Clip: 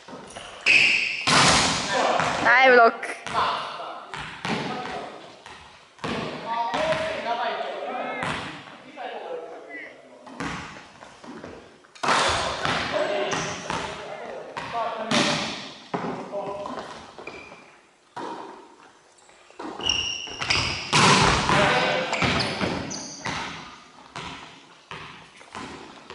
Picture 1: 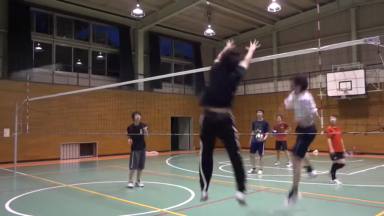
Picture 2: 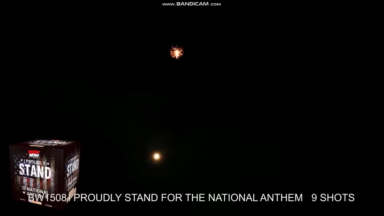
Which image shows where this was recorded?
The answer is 1